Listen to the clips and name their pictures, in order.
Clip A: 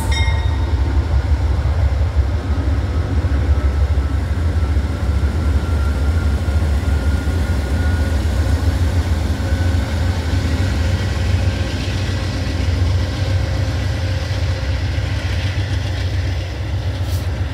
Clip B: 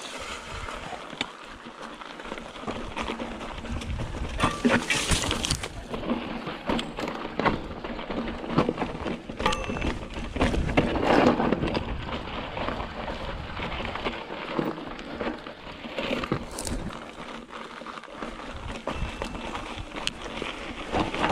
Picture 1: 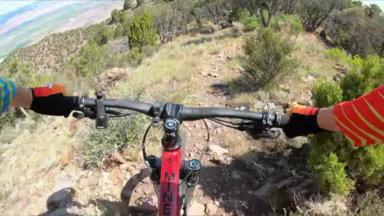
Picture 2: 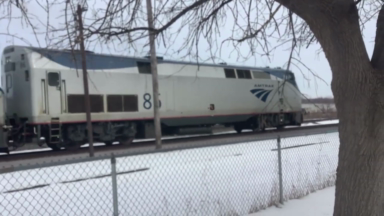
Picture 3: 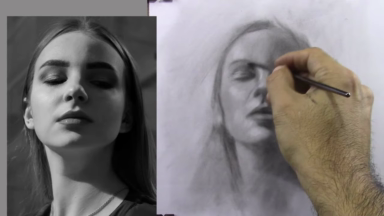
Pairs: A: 2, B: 1